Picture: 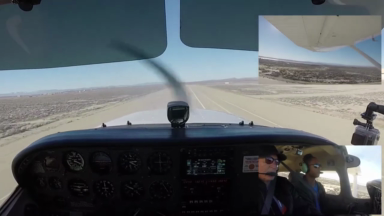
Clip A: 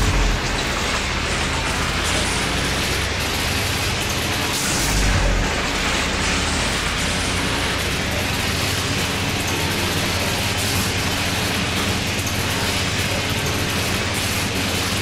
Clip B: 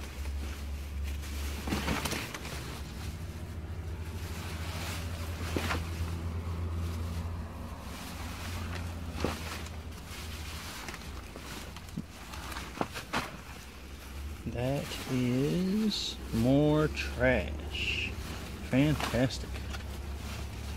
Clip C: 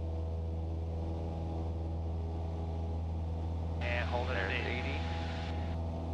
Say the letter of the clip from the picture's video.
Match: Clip C